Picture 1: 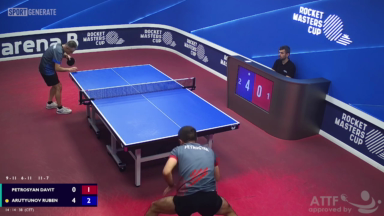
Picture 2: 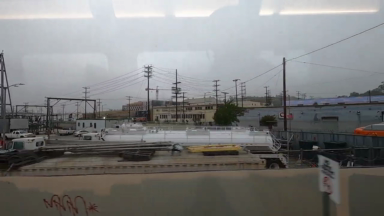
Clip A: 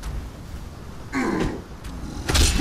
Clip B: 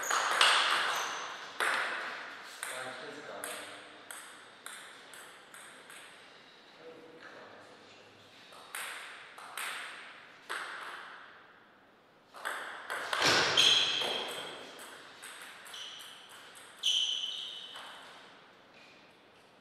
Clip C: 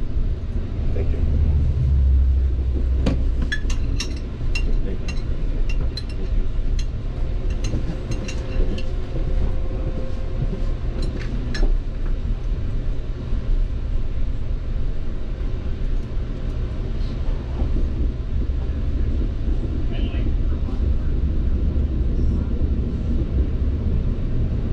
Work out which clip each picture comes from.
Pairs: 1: B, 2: C